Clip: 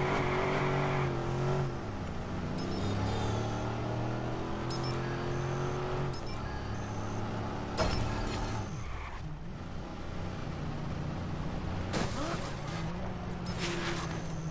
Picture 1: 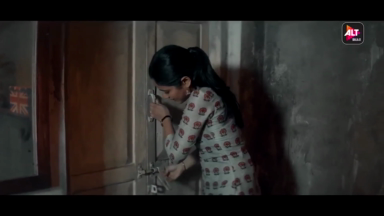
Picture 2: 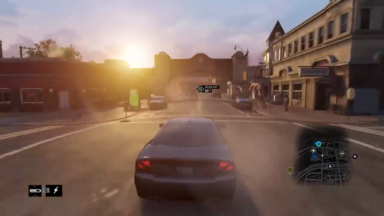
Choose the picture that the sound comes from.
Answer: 2